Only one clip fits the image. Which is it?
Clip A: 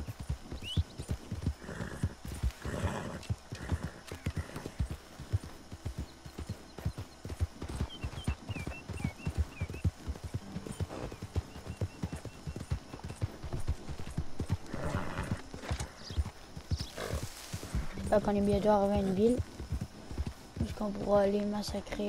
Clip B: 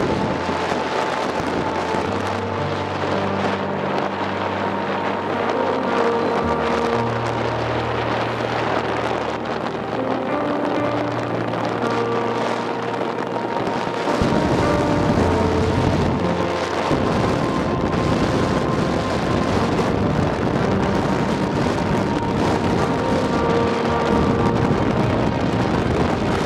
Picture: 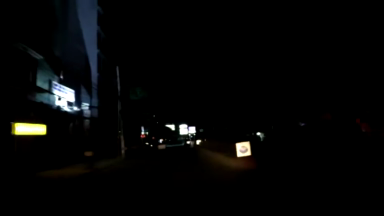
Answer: B